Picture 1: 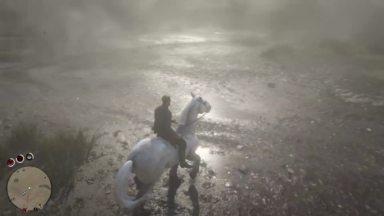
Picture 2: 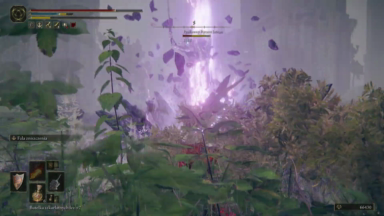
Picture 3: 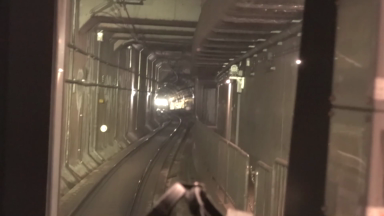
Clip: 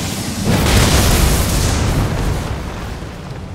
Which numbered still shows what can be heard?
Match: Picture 2